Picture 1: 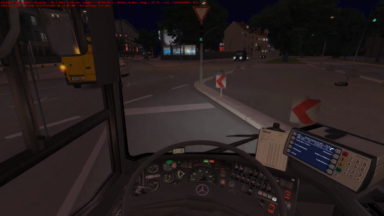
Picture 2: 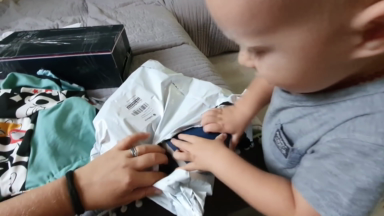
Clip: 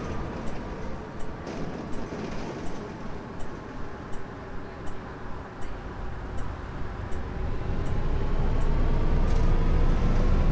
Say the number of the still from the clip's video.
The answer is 1